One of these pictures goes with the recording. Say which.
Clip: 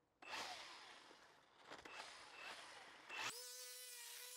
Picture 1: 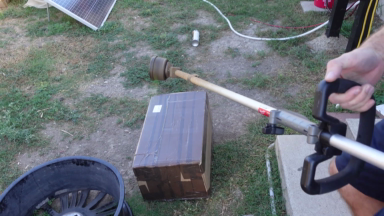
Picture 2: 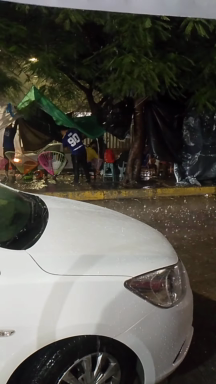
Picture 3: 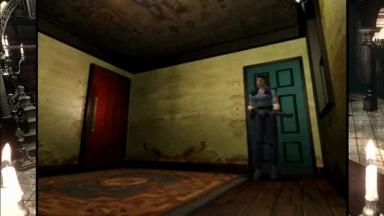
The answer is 1